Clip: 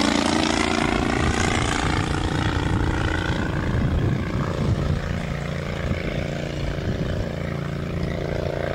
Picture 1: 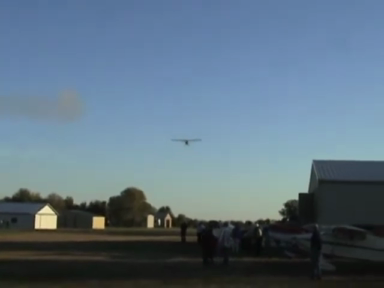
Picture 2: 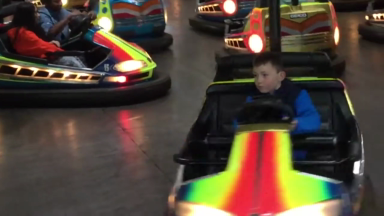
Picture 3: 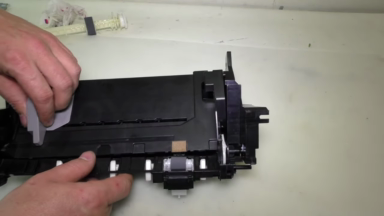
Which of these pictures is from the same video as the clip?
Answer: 1